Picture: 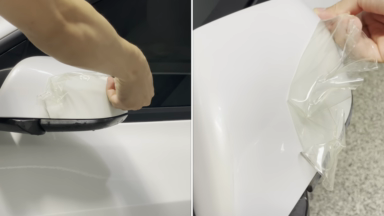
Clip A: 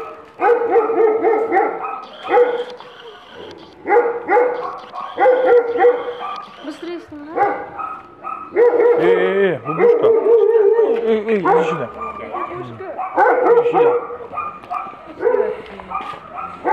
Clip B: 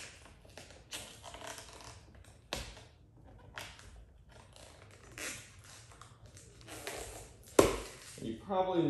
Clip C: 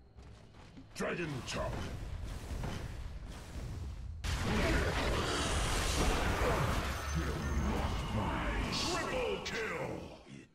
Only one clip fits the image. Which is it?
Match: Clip B